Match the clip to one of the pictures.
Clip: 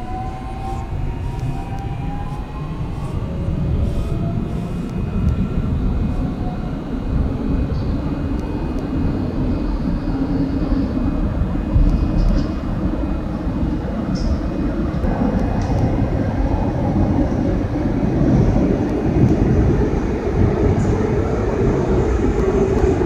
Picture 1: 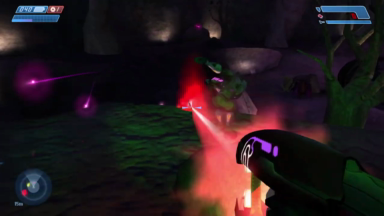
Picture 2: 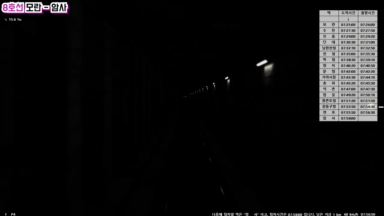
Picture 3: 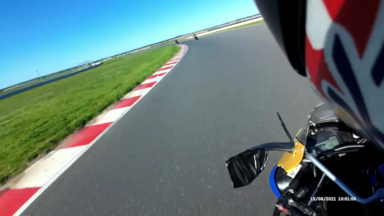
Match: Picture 2